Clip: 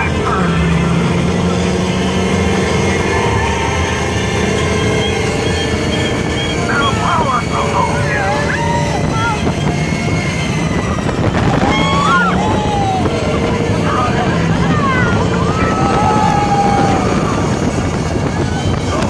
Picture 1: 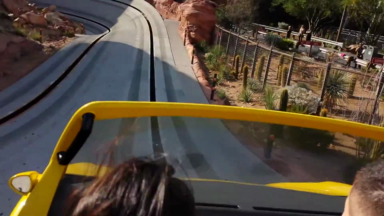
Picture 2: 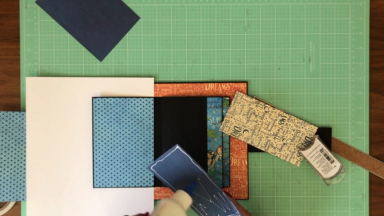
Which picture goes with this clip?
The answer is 1